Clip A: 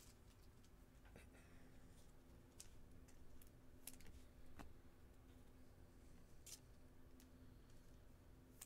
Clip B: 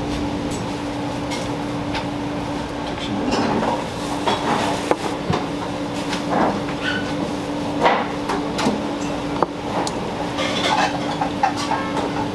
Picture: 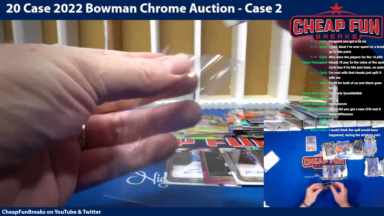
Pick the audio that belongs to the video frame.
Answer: A